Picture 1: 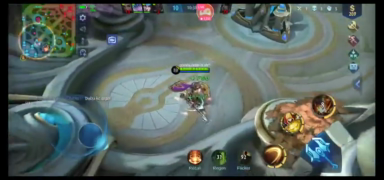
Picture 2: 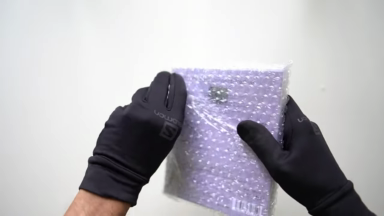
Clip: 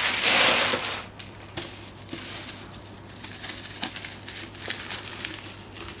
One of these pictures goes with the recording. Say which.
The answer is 2